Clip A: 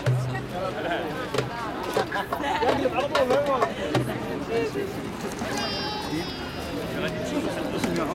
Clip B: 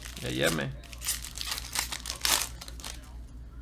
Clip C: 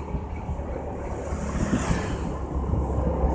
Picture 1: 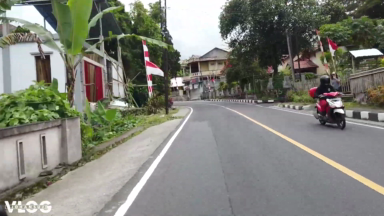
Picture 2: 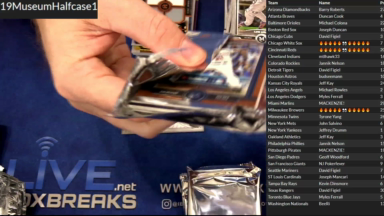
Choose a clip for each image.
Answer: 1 C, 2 B